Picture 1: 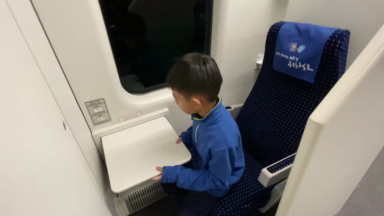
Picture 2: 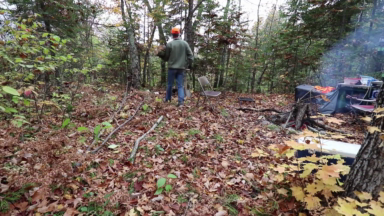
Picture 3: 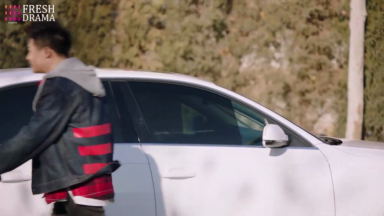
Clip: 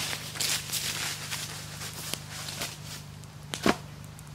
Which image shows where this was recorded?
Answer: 2